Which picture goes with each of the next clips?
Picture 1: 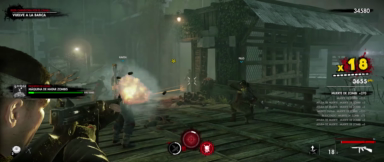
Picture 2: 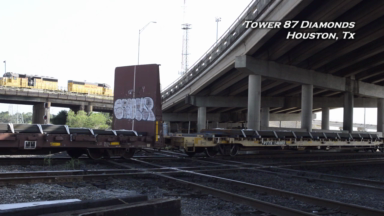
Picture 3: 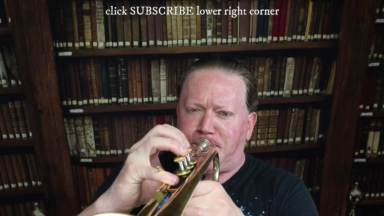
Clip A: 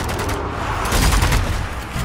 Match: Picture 1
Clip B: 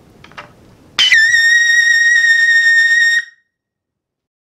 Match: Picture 3